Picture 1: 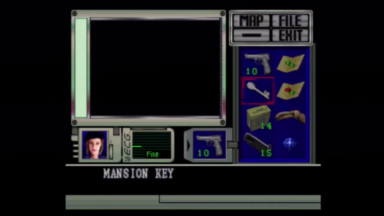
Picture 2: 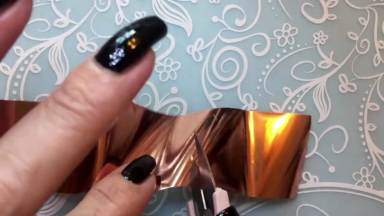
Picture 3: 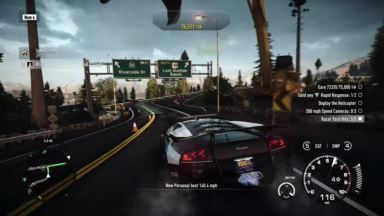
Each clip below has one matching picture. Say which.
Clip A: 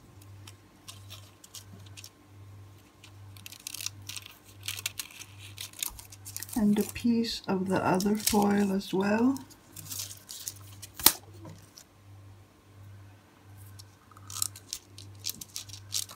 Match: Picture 2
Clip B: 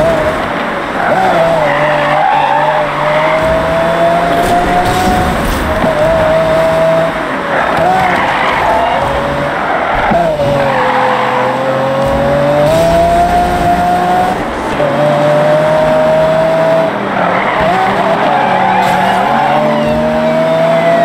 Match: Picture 3